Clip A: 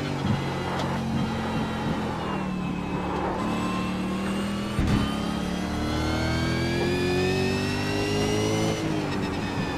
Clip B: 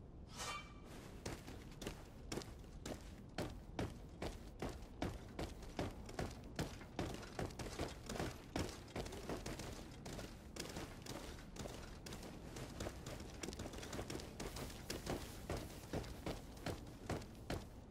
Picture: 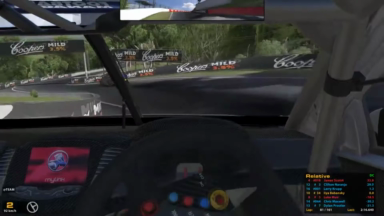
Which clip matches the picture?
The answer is A